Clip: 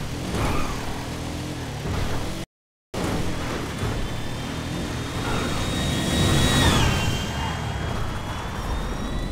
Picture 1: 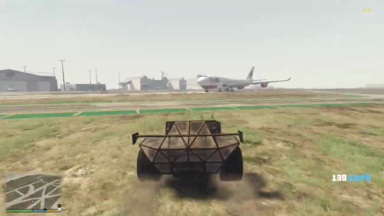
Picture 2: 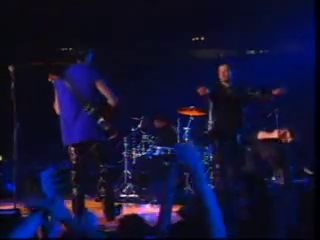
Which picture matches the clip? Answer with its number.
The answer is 1